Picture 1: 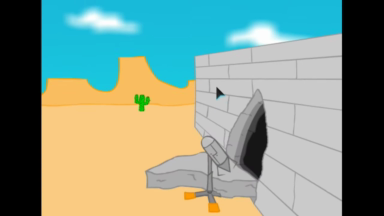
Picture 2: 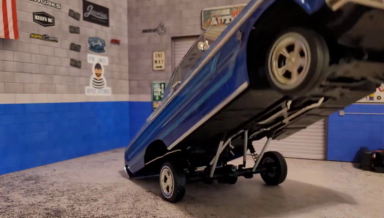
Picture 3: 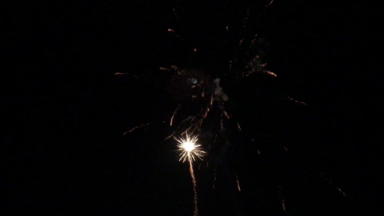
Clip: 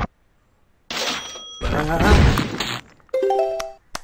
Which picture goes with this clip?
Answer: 1